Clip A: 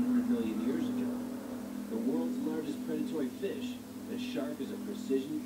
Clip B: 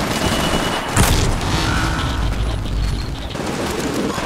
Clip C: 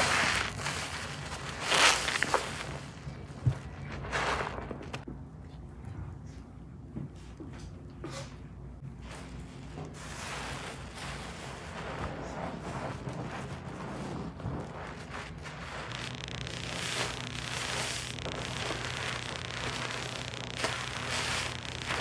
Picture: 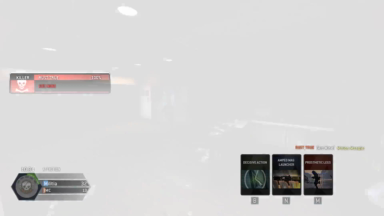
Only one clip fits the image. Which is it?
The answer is B